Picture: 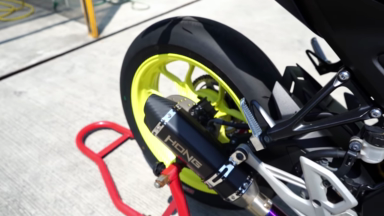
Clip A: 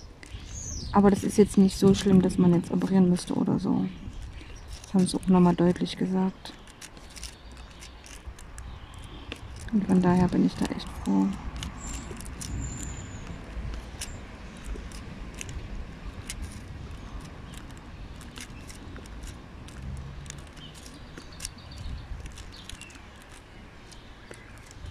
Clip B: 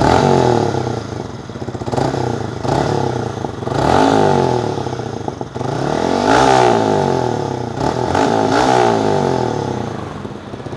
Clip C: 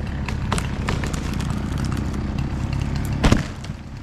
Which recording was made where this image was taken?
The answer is B